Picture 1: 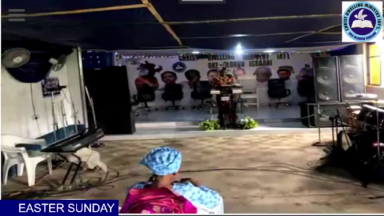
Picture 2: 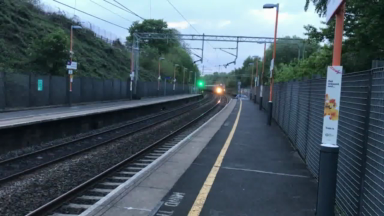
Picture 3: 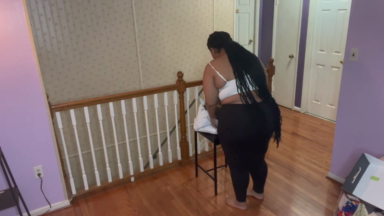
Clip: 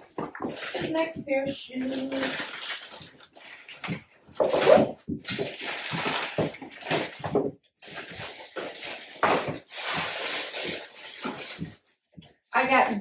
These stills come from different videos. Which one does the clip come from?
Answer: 3